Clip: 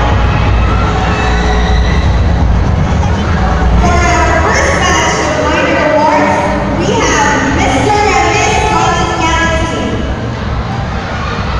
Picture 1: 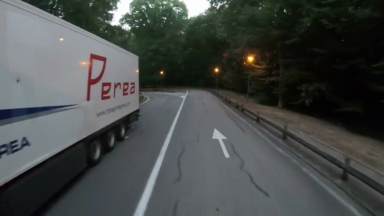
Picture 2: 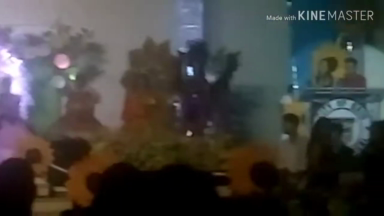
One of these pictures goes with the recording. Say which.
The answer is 2